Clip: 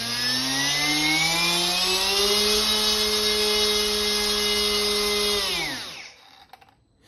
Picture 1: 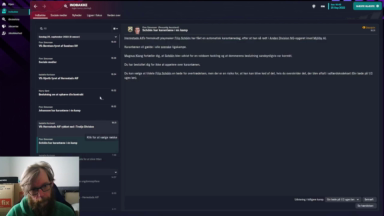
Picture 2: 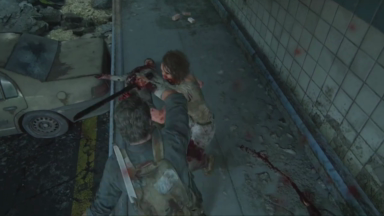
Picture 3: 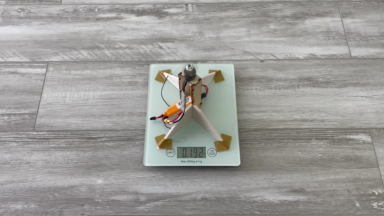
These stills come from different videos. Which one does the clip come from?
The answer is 3